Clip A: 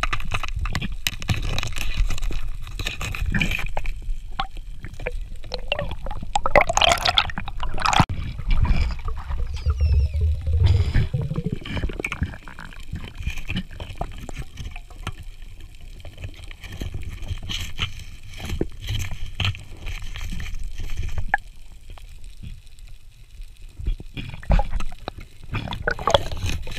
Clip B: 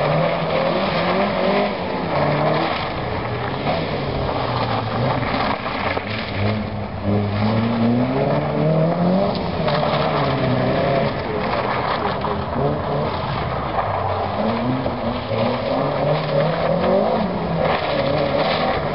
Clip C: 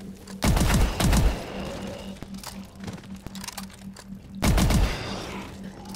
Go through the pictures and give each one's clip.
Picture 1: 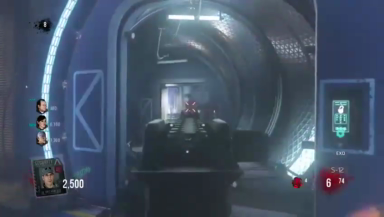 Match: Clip C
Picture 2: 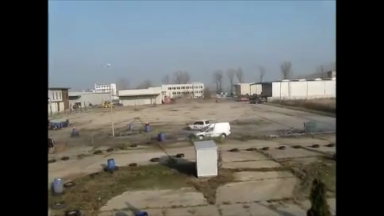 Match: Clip B